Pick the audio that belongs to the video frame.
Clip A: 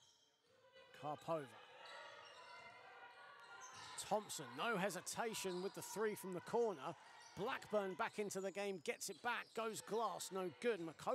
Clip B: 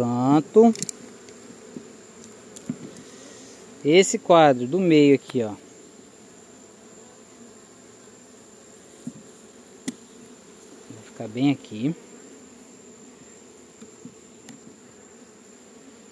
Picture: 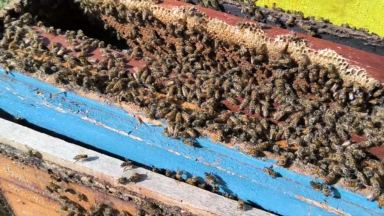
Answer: B